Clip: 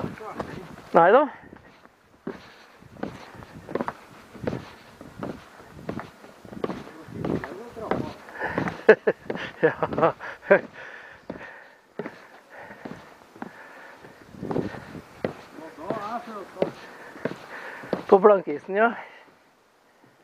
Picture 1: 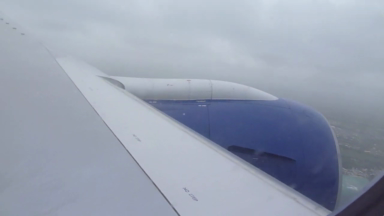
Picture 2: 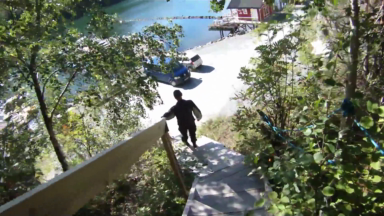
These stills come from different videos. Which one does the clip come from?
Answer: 2